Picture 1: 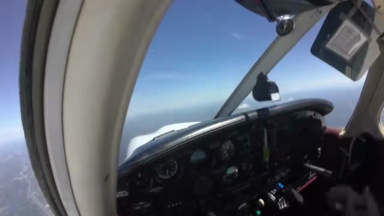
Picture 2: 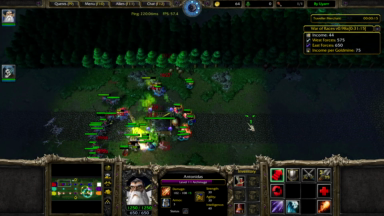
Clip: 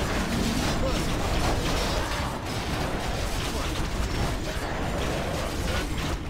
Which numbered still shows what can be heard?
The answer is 2